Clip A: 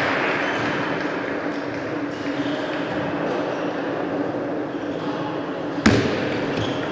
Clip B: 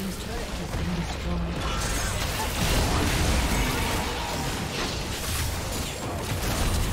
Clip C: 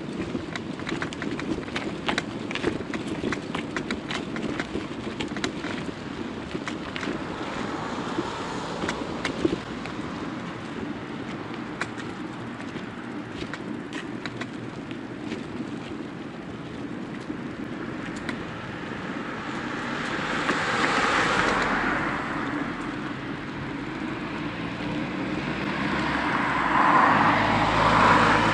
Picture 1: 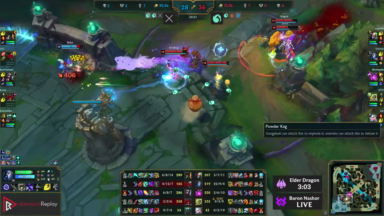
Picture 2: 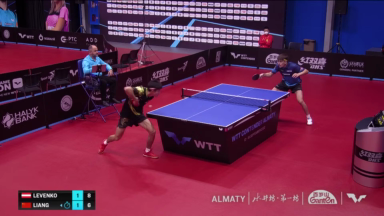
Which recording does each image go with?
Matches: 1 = B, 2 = A